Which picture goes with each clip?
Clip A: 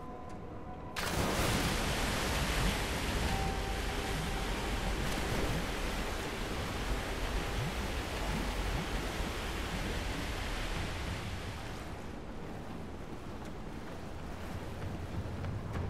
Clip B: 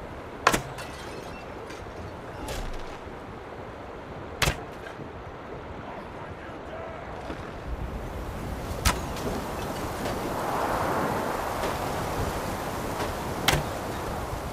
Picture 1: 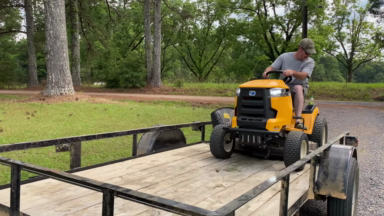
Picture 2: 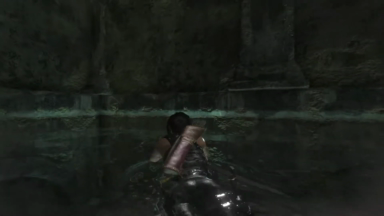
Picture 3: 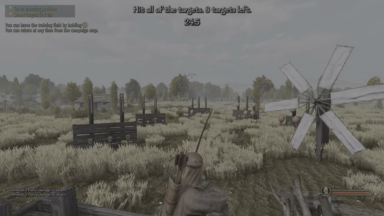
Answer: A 2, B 3